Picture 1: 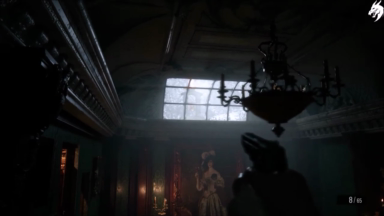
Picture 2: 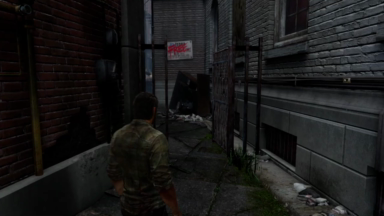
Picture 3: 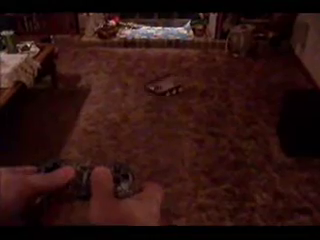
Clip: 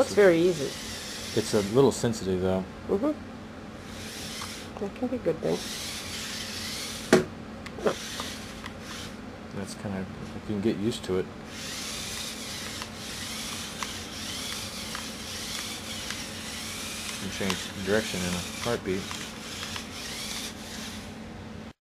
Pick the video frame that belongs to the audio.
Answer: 3